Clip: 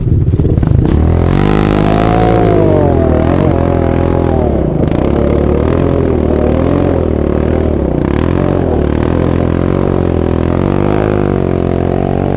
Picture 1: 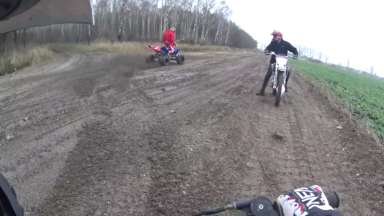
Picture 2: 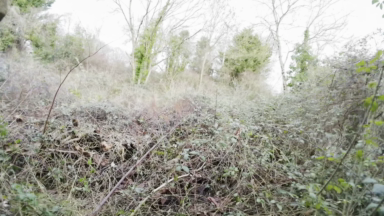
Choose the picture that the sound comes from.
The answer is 1